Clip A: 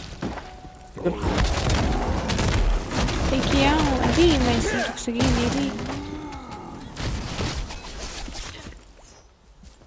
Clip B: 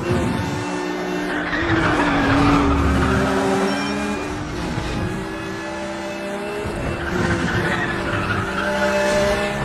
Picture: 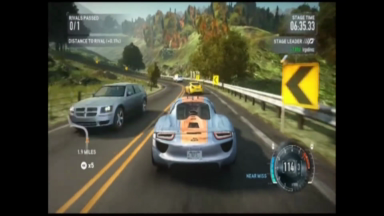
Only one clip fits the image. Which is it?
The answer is B